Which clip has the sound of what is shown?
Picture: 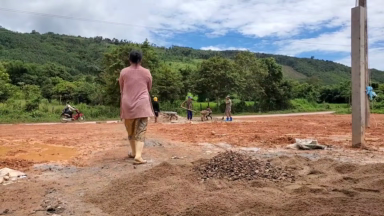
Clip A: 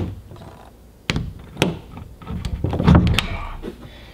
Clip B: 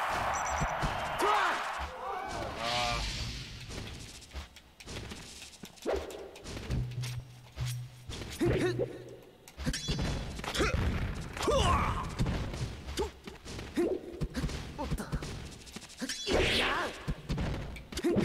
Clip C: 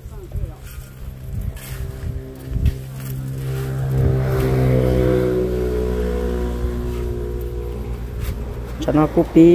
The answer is C